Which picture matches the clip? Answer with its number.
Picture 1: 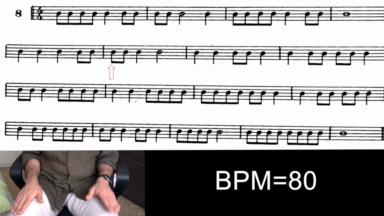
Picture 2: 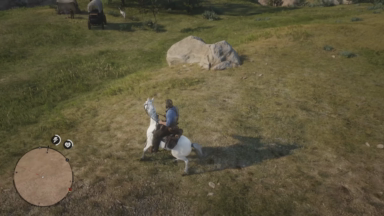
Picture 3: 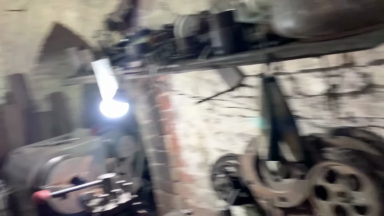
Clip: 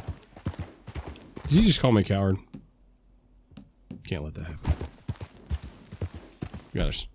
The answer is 2